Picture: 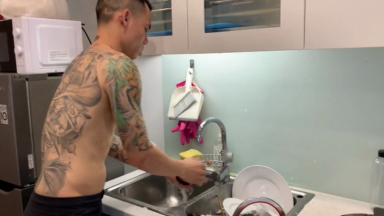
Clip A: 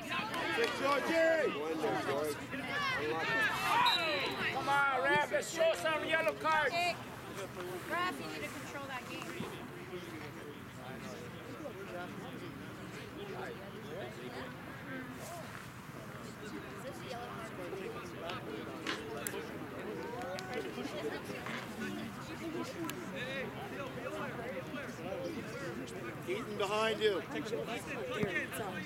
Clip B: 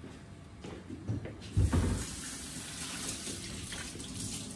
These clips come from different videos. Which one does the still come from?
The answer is B